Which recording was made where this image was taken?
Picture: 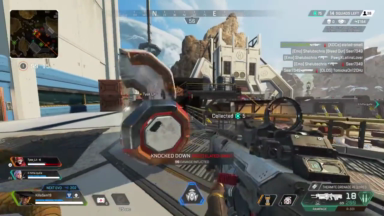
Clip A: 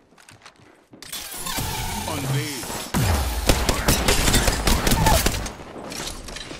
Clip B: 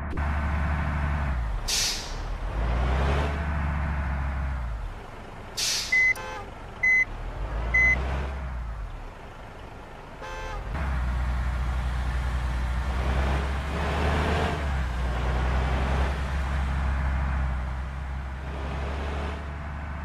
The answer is A